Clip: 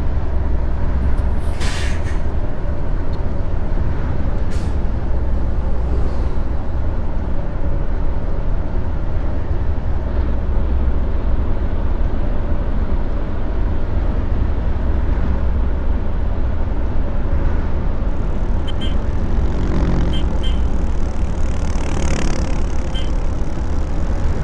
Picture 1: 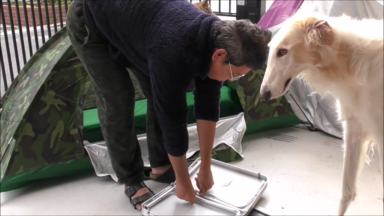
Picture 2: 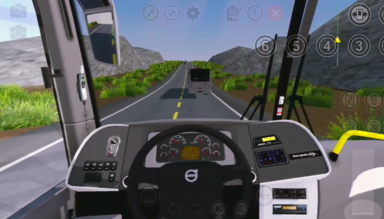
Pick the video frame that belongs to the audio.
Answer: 2